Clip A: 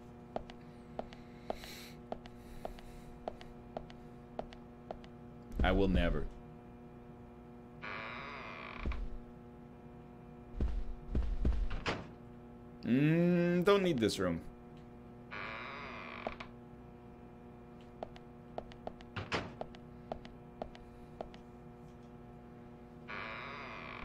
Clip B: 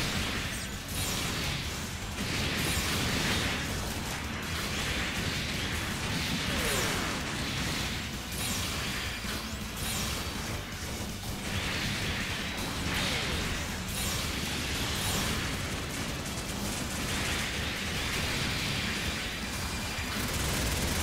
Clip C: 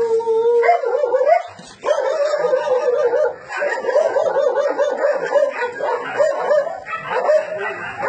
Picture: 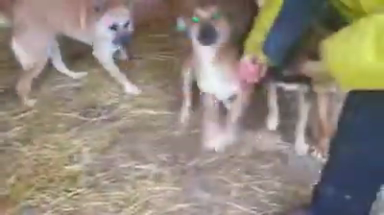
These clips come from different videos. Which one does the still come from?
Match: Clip C